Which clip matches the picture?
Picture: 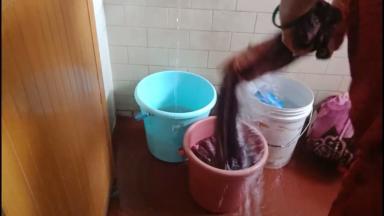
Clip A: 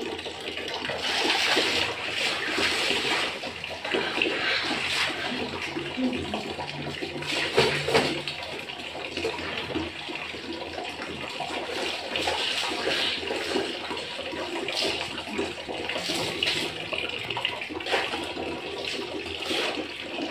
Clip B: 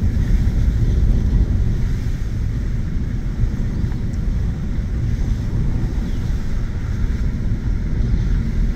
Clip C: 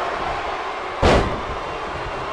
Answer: A